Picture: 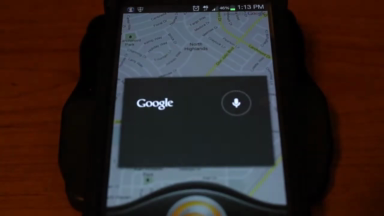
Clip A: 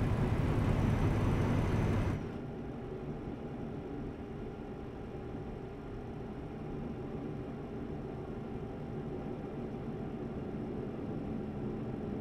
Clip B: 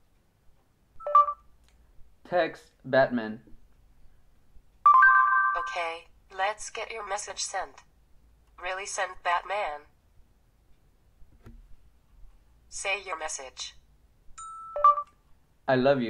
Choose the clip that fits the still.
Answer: B